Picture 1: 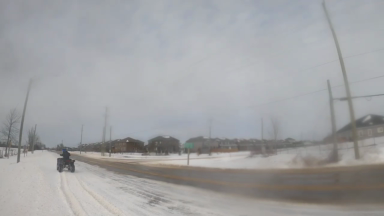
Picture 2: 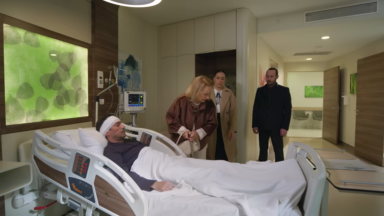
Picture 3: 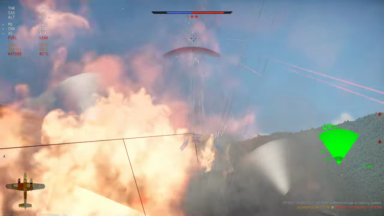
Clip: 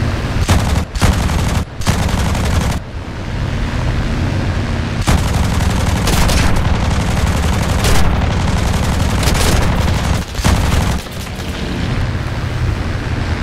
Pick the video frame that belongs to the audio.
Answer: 3